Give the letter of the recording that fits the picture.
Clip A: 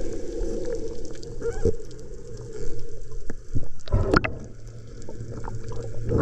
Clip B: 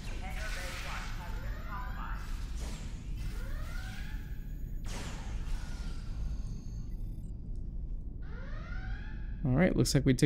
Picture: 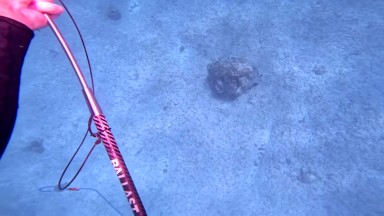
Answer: A